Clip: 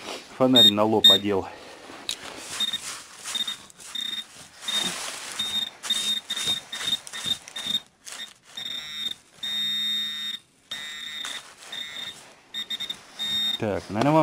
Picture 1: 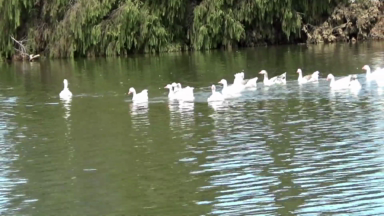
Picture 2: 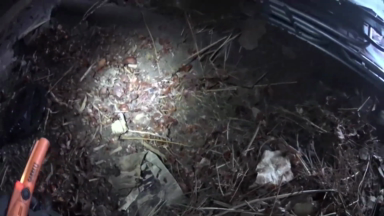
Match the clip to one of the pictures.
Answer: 2